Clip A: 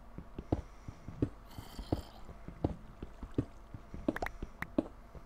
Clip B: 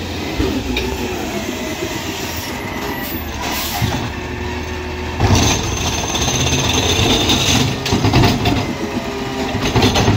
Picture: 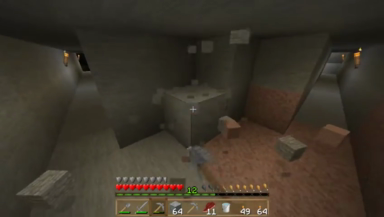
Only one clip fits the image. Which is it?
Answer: A